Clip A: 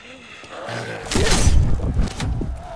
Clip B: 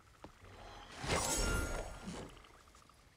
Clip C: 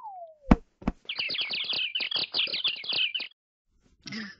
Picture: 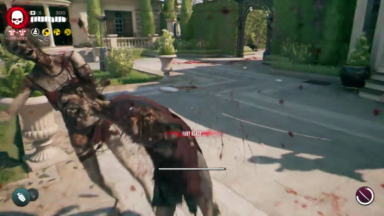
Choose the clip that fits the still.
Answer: A